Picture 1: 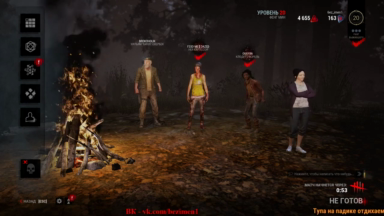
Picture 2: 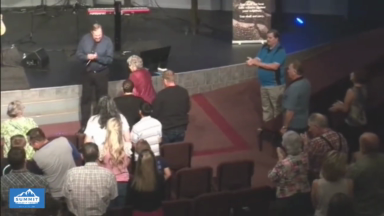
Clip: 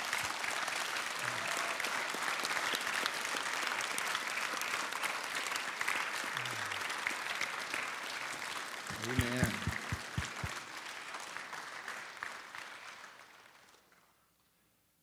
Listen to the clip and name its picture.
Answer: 2